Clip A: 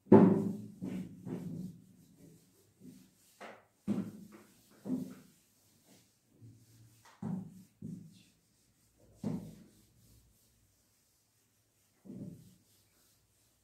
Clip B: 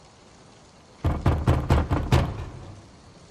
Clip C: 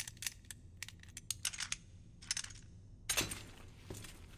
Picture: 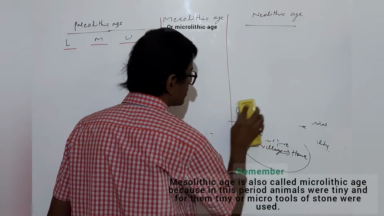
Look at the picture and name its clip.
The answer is A